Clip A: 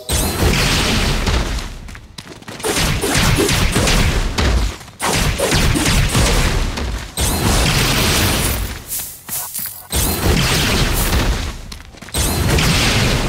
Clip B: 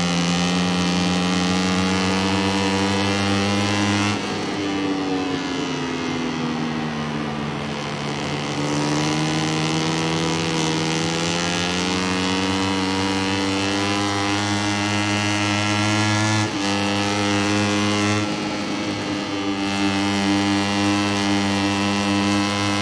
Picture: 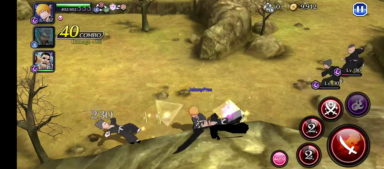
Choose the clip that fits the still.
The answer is A